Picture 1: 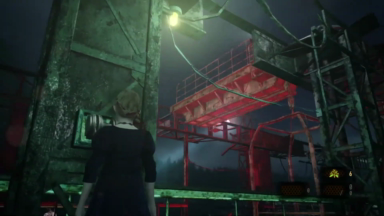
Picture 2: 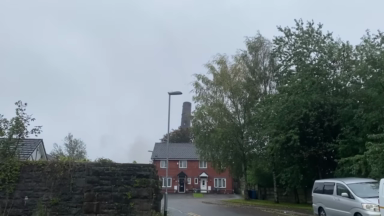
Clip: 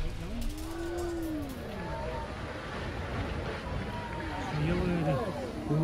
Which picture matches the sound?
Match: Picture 2